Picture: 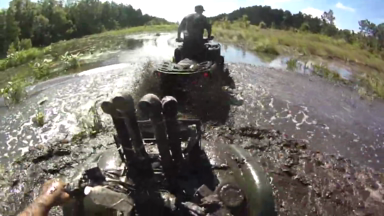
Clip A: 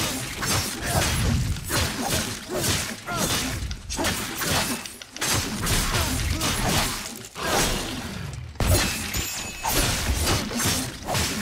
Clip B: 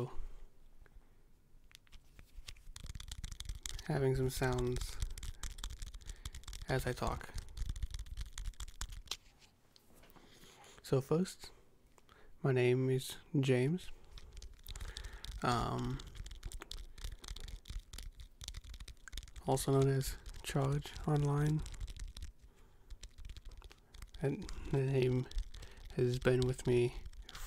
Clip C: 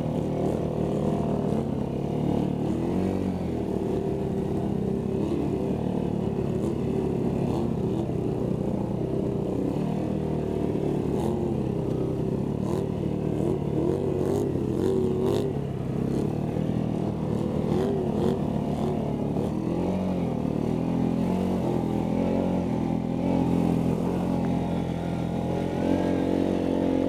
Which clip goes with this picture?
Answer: C